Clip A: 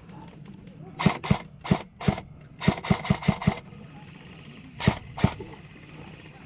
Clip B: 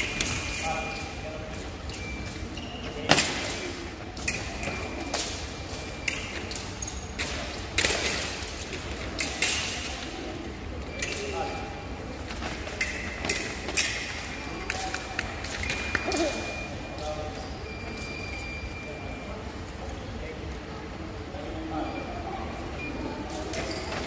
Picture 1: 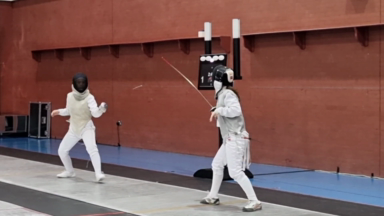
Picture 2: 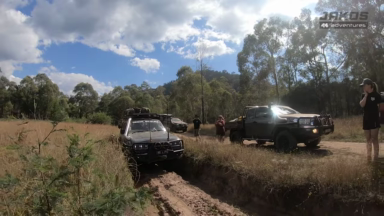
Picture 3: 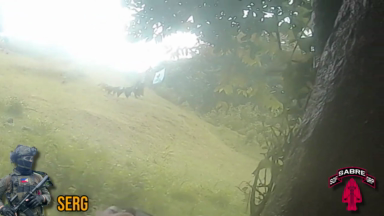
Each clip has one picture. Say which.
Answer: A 3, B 1